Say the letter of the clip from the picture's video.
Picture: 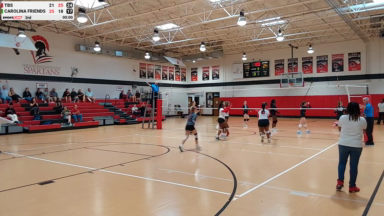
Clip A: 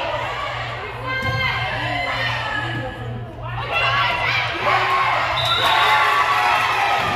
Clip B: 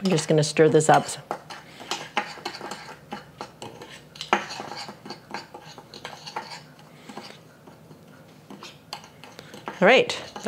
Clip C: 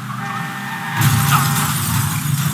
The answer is A